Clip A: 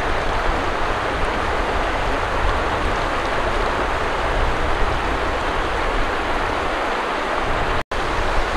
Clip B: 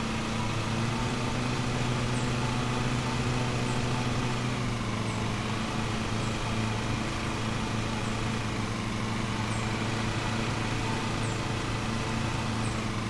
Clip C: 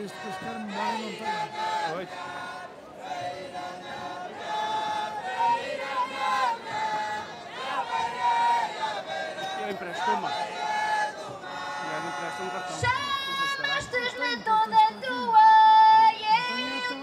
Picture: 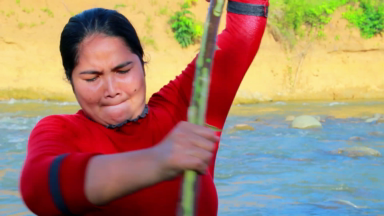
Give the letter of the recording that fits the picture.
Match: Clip A